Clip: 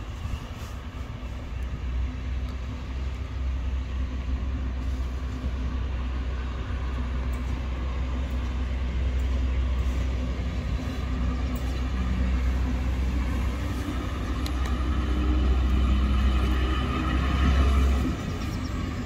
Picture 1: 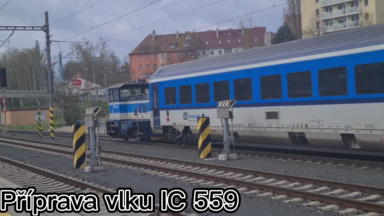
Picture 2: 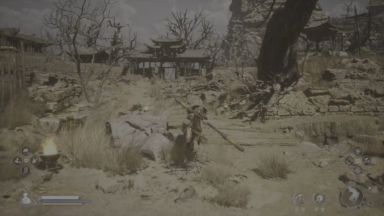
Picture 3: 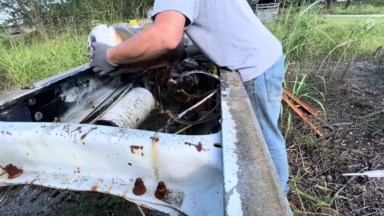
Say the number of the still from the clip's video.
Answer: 1